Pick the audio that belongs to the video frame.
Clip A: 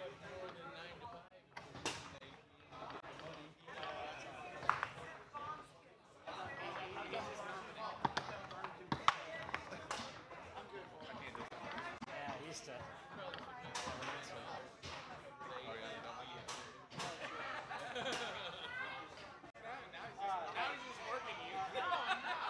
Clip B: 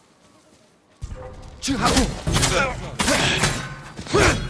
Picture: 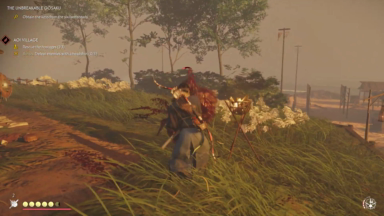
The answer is B